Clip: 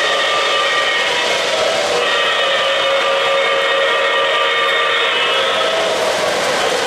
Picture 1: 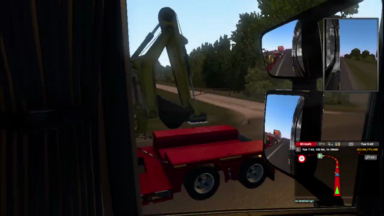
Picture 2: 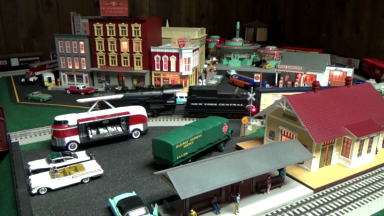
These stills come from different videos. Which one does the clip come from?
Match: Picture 2